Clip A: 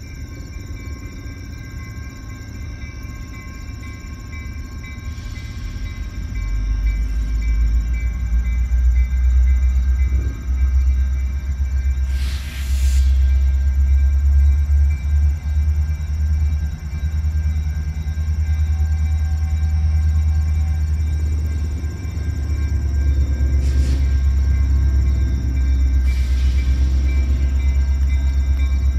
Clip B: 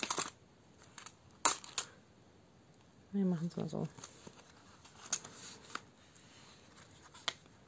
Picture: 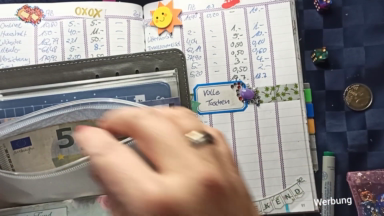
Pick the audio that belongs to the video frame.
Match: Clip B